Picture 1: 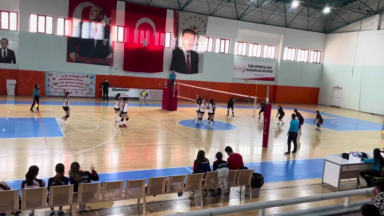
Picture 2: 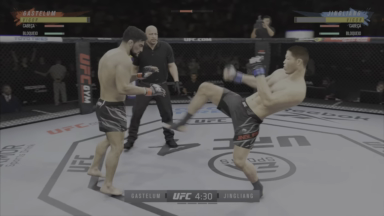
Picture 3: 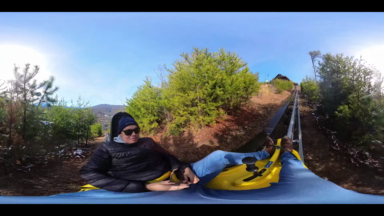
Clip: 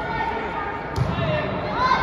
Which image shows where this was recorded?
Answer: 1